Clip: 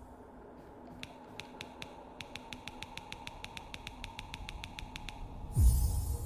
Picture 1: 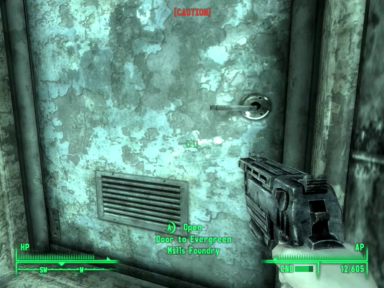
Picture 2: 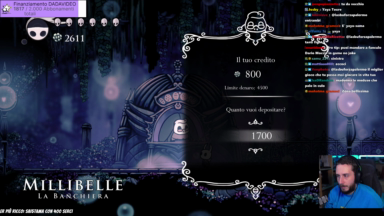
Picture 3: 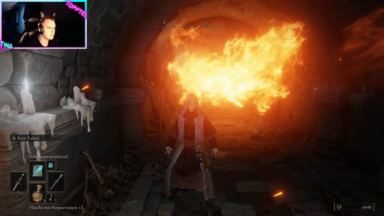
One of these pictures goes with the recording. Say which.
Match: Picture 2